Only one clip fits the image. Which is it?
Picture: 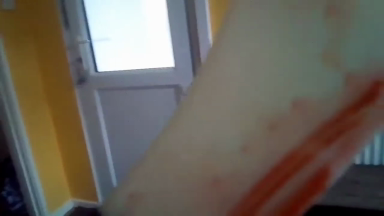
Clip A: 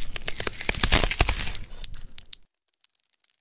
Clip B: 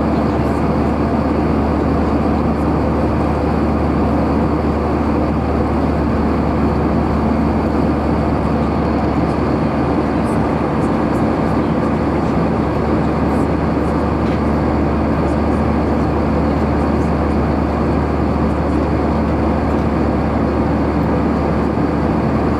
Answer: A